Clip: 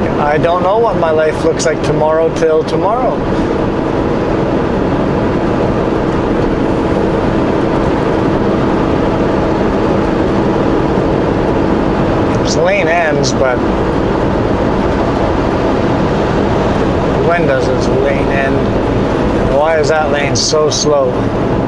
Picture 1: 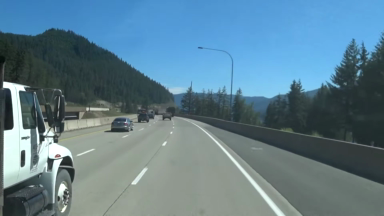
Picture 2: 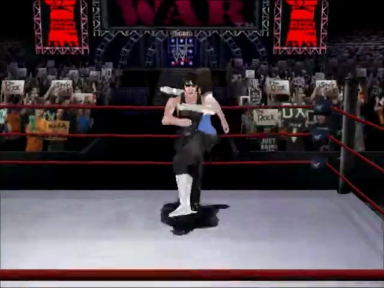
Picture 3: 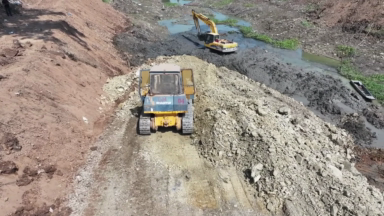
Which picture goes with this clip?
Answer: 1